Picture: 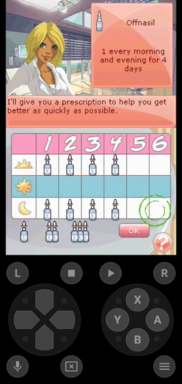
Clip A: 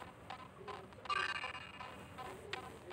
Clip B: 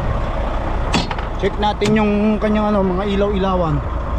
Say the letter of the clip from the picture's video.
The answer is A